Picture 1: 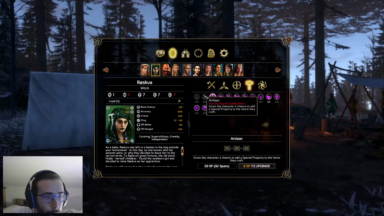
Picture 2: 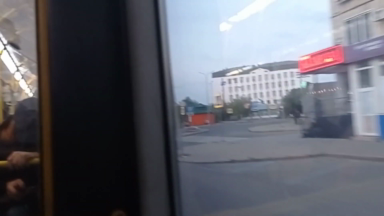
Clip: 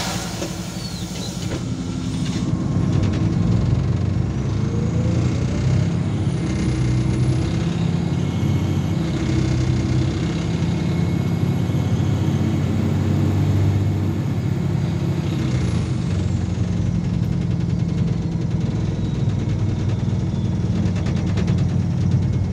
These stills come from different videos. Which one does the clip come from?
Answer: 2